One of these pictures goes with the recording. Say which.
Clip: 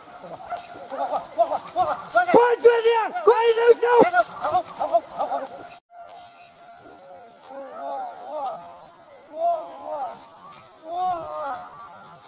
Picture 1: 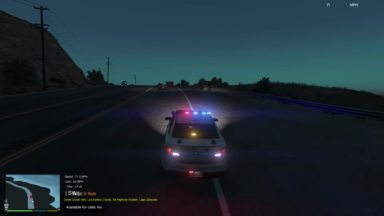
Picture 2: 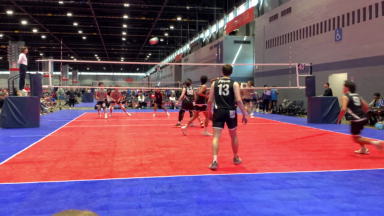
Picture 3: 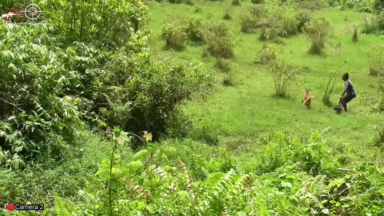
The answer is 3